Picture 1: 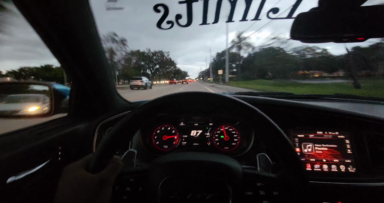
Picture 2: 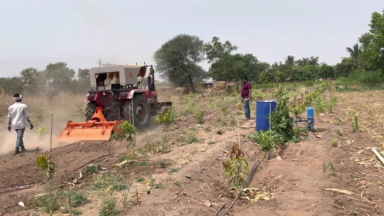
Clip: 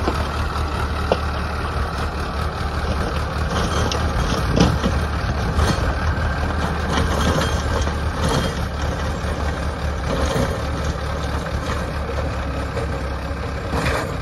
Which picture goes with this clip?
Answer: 2